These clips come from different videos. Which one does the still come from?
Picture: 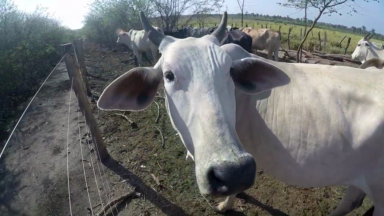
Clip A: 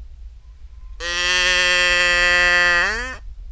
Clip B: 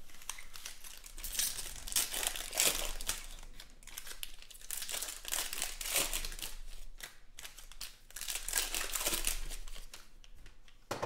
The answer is A